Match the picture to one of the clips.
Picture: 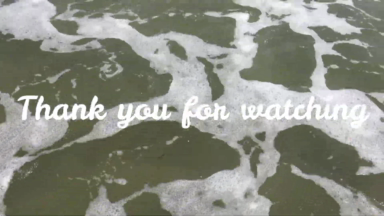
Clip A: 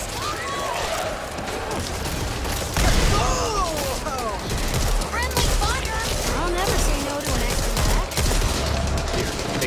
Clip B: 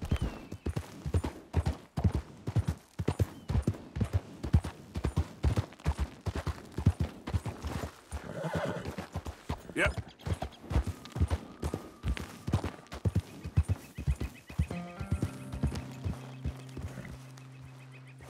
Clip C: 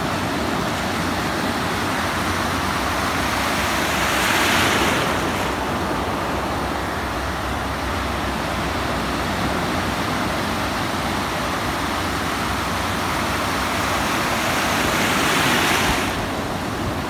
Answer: C